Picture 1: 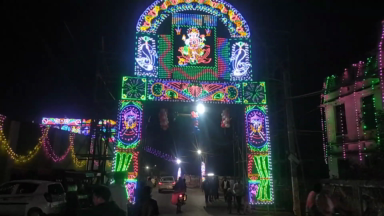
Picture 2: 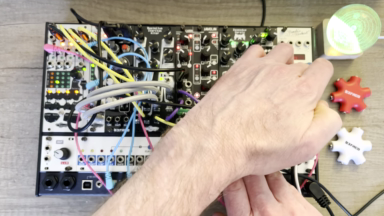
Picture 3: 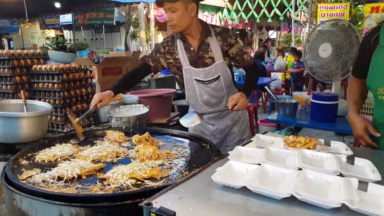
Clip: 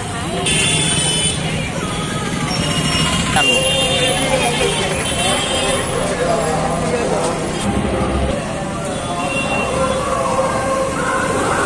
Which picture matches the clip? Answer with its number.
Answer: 1